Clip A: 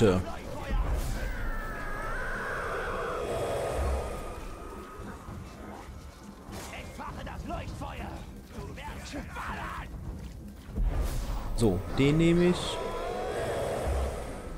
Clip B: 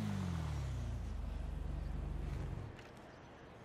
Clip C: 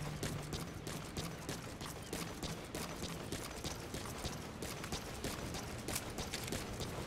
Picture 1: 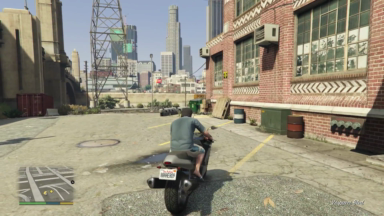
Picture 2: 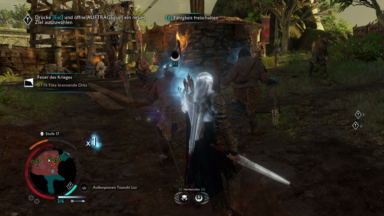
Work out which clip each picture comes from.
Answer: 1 B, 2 A